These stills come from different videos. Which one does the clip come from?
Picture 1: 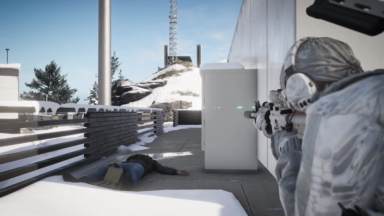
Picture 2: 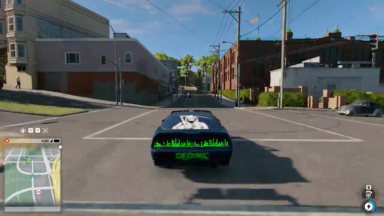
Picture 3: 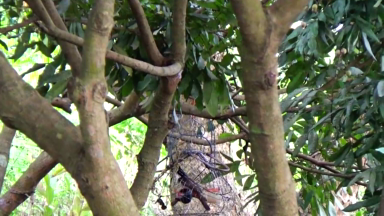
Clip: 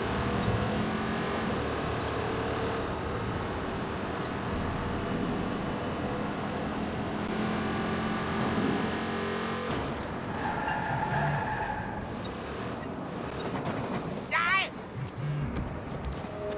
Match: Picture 2